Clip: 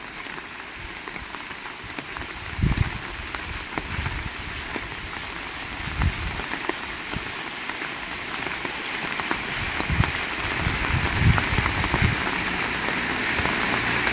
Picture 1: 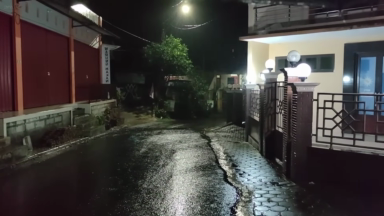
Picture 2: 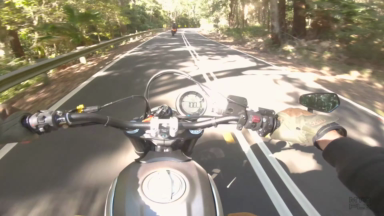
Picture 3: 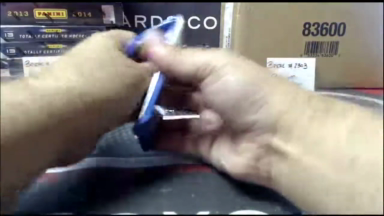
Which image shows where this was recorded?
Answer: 1